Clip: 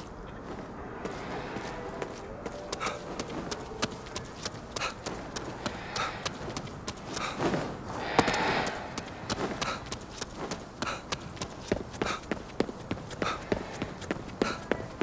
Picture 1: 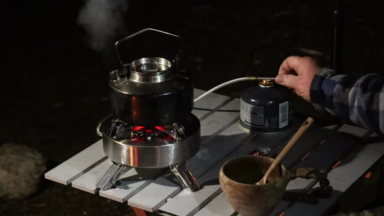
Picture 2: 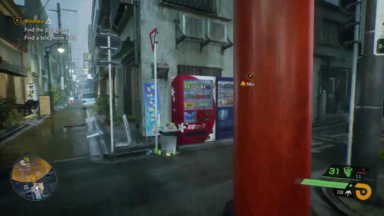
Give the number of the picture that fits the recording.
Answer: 2